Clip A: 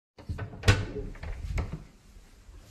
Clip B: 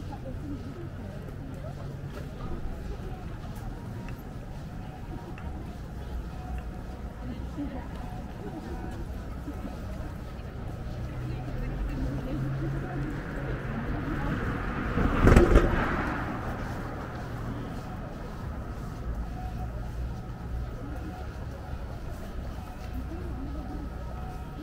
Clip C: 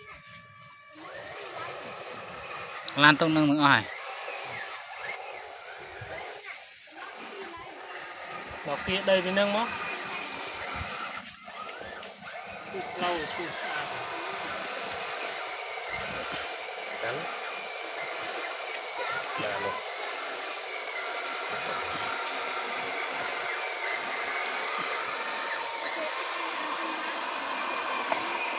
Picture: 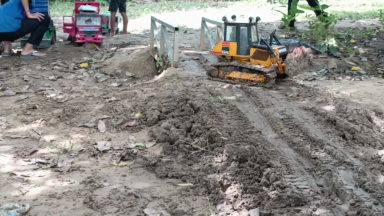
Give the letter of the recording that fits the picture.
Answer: C